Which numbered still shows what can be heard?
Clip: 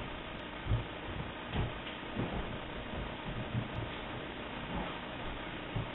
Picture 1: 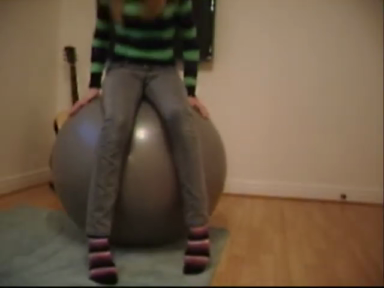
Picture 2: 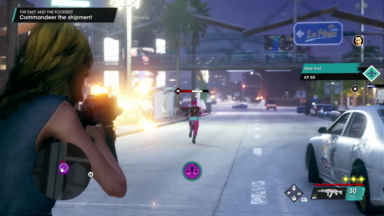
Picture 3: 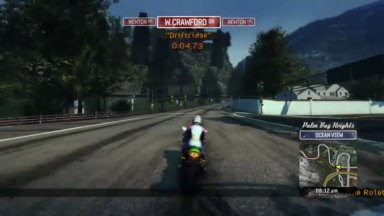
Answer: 1